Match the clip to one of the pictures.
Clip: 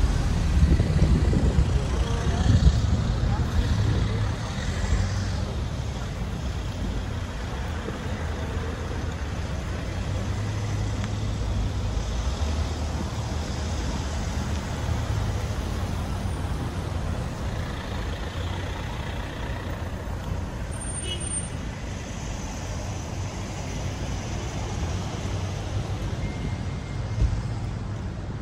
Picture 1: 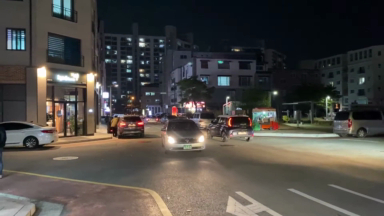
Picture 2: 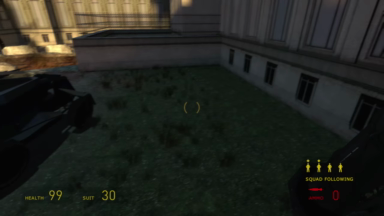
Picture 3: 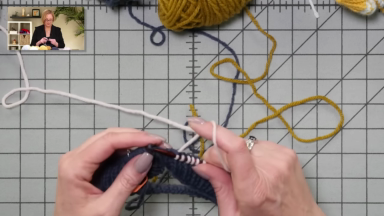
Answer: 1